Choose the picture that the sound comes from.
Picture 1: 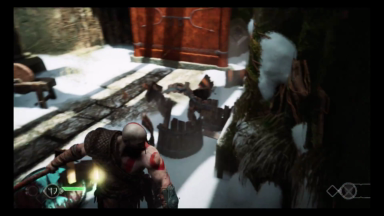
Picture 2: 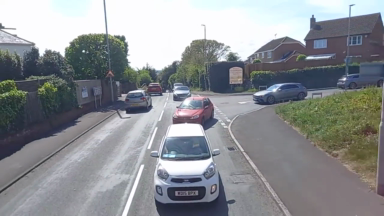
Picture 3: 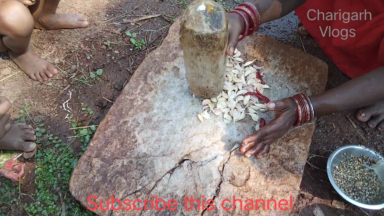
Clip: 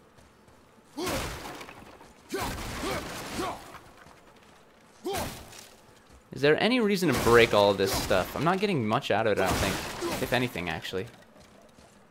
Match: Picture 1